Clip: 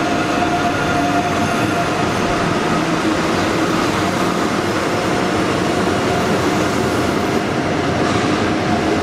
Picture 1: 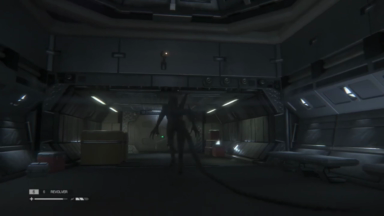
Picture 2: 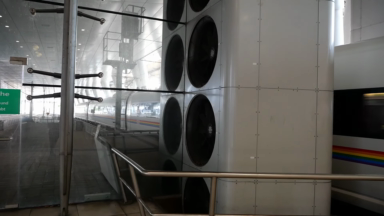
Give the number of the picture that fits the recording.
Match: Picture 2